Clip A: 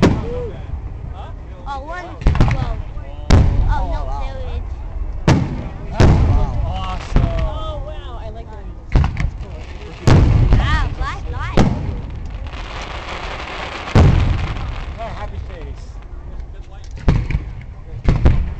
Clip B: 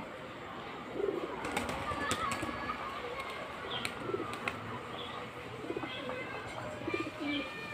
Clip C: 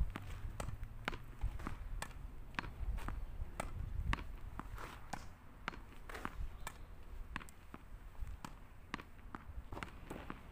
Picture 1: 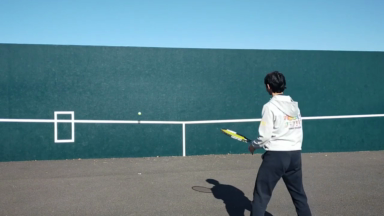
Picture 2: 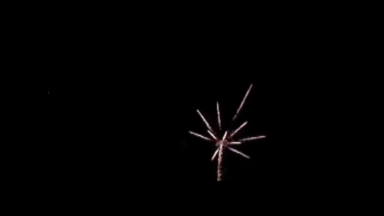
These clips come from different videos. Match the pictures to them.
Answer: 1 C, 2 A